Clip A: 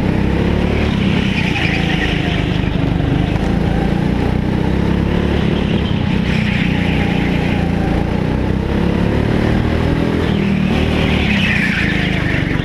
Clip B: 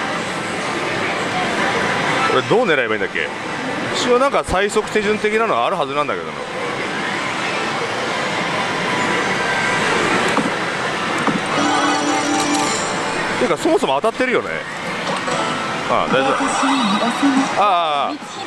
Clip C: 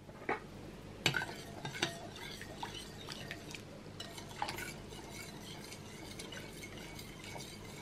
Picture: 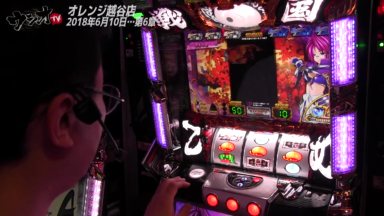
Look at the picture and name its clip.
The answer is B